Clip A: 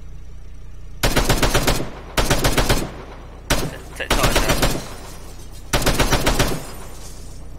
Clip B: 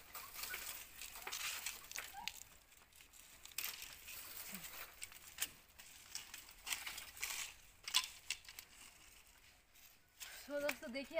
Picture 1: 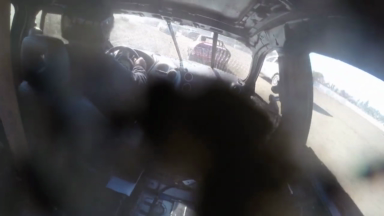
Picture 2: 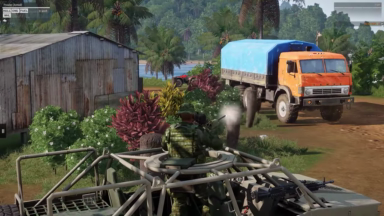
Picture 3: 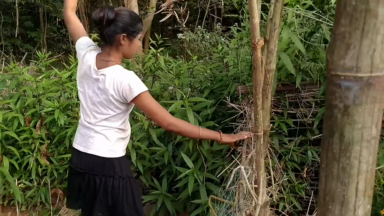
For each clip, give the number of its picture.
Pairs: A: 2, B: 3